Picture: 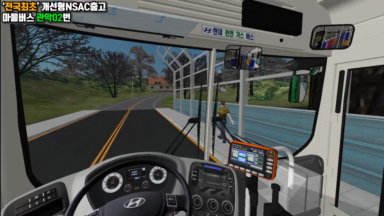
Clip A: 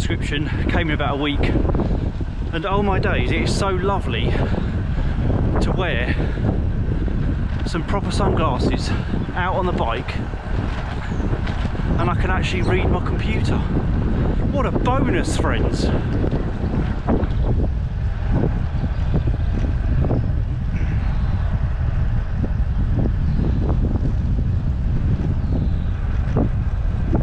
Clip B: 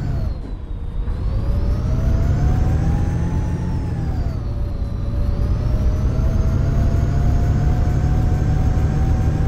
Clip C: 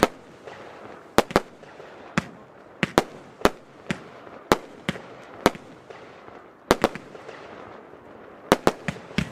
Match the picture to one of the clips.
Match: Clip B